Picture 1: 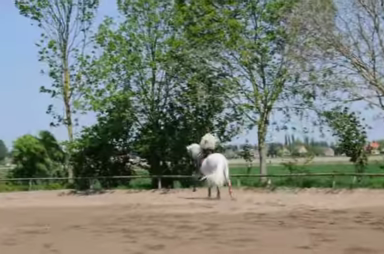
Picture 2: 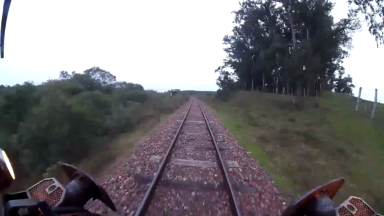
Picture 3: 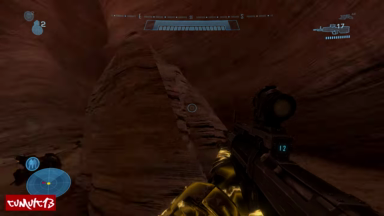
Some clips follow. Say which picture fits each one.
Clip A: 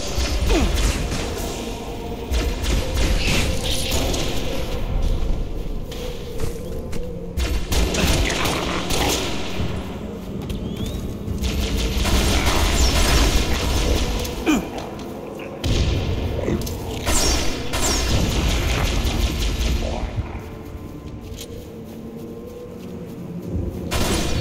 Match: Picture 3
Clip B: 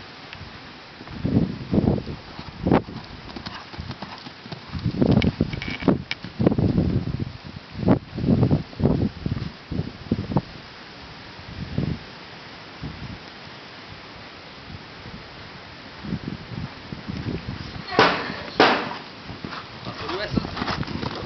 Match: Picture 1